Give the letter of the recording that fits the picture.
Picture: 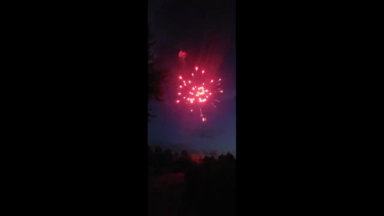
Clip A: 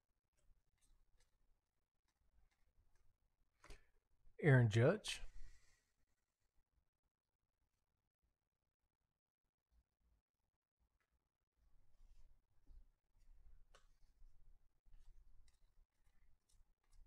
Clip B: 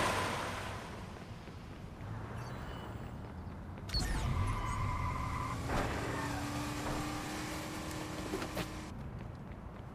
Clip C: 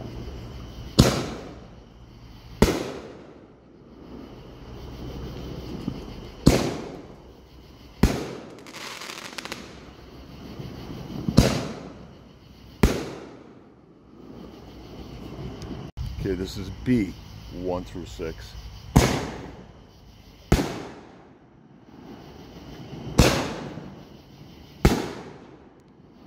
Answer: C